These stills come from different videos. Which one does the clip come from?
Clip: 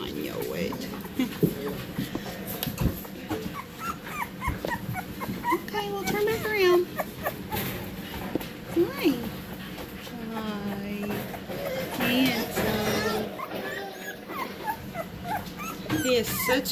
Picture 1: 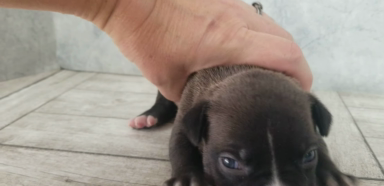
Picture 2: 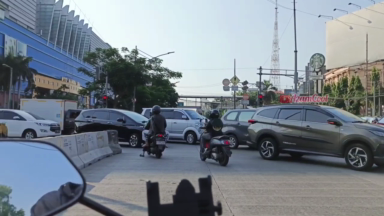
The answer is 1